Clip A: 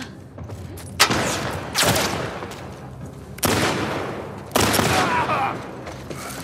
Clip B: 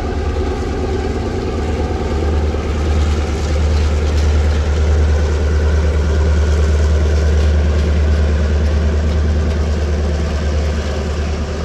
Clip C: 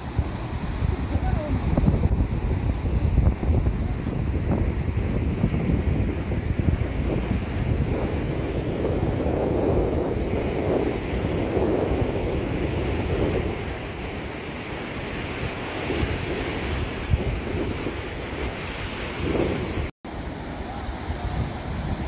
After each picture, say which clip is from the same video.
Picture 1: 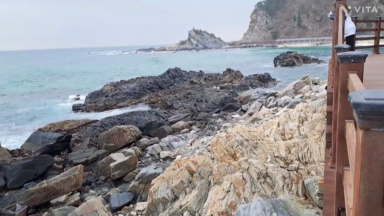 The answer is C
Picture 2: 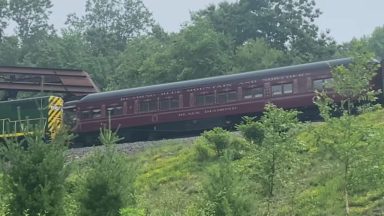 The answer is B